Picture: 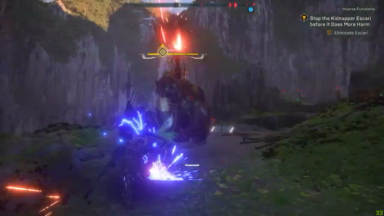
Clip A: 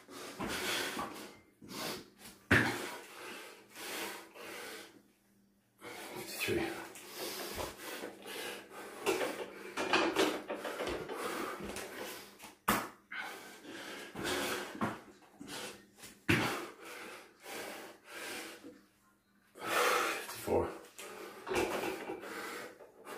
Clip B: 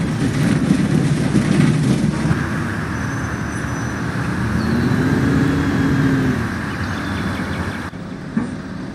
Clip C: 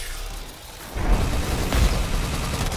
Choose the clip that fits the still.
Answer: C